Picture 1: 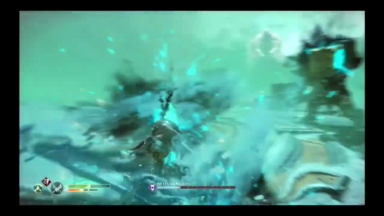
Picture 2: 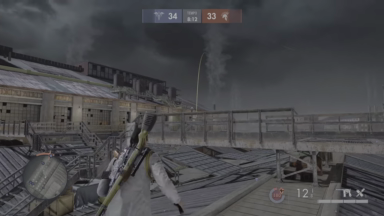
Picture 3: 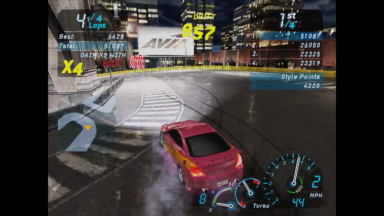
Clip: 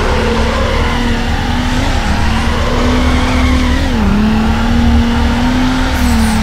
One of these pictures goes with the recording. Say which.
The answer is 3